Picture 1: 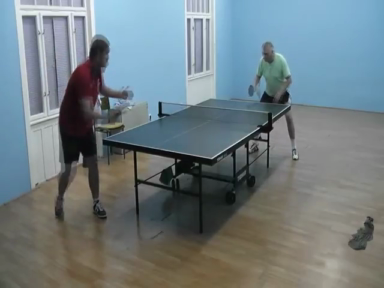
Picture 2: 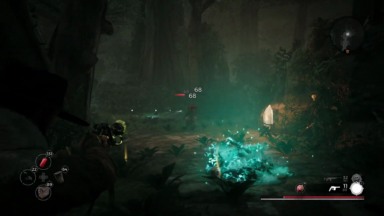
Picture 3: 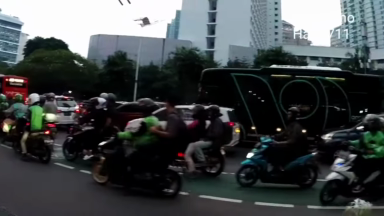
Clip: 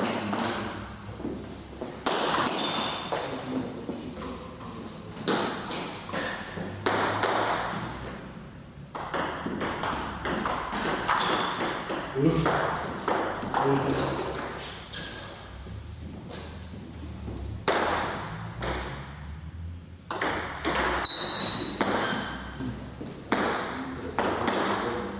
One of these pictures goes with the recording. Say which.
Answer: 1